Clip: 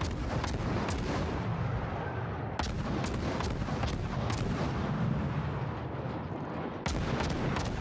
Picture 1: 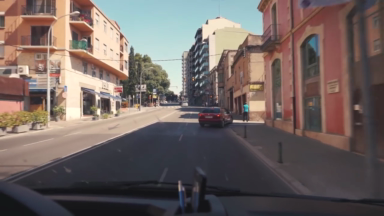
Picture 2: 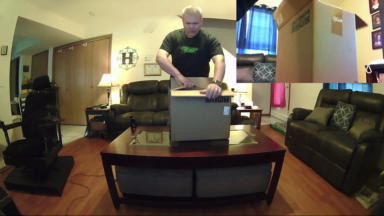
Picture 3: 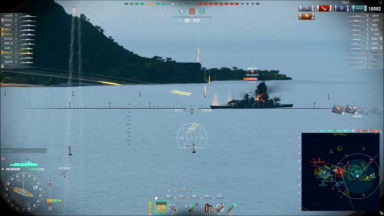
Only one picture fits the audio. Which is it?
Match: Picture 3